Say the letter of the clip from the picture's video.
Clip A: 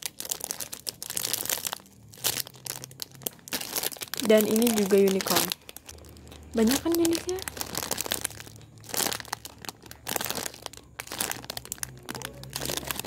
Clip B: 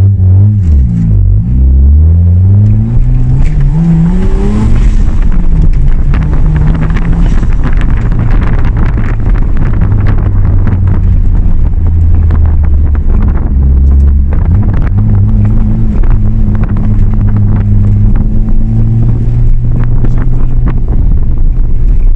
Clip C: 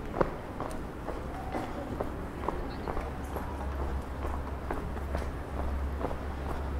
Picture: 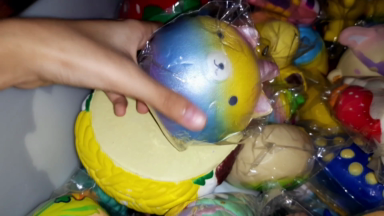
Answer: A